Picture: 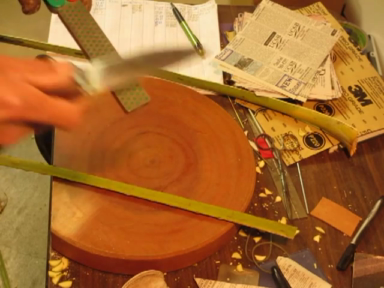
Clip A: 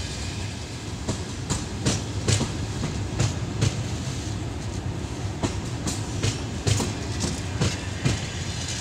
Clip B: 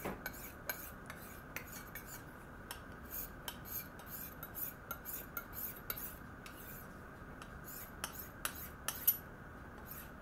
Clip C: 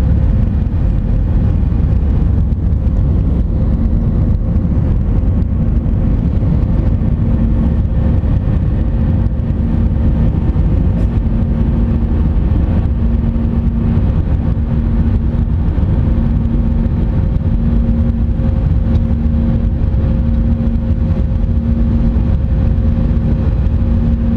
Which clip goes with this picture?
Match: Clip B